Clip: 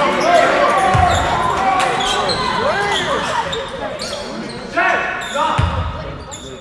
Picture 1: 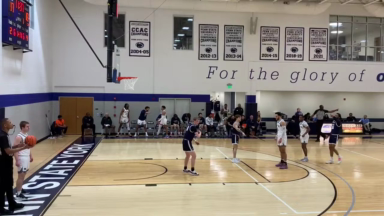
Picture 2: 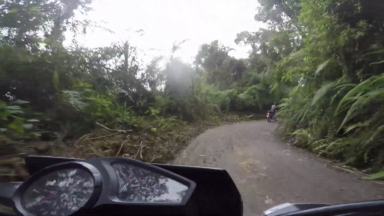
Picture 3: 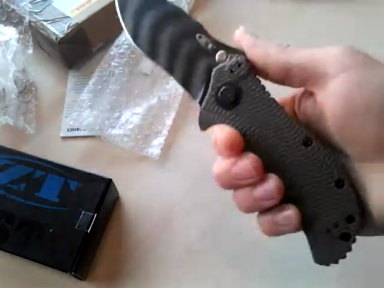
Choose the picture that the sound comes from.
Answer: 1